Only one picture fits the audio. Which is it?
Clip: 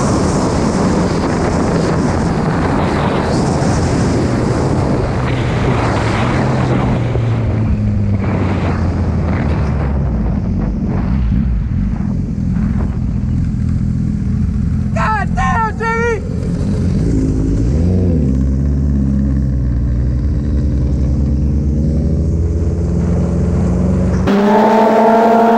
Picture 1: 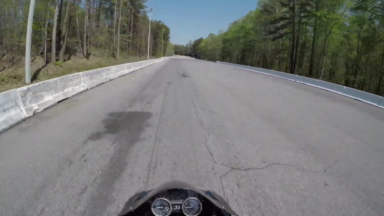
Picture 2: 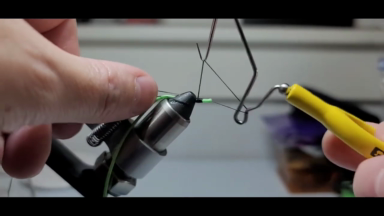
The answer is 1